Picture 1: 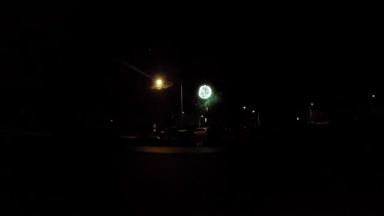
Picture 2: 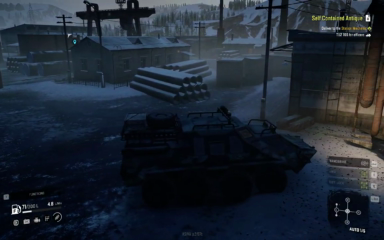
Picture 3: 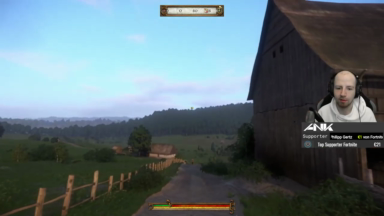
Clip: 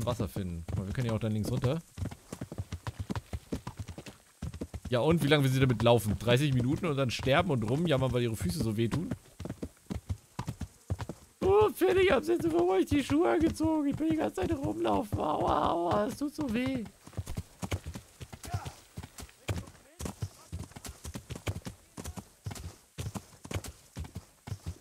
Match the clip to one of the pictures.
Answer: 3